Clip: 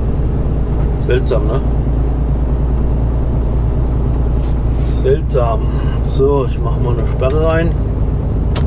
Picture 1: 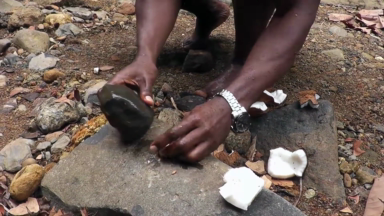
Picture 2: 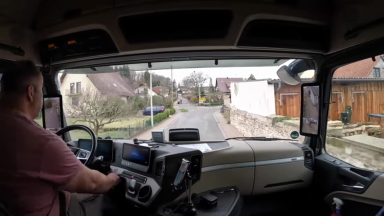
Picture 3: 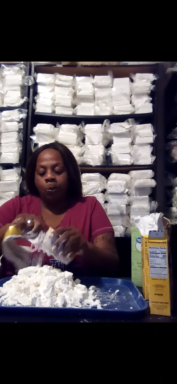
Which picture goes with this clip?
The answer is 2